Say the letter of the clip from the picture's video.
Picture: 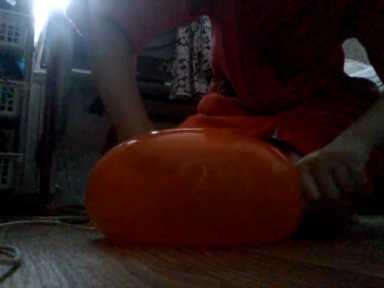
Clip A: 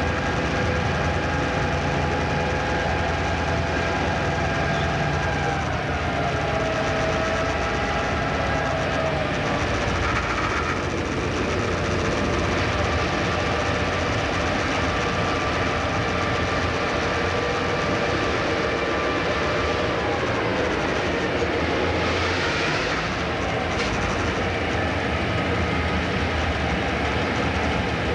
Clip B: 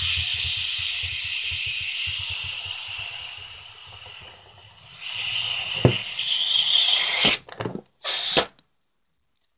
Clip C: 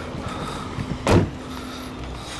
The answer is B